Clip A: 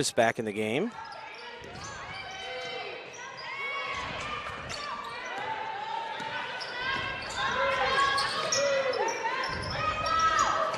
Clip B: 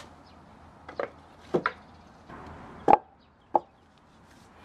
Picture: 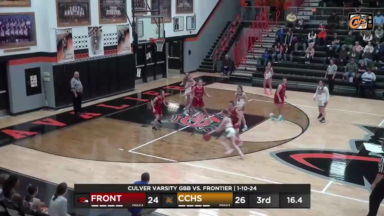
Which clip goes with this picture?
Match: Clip A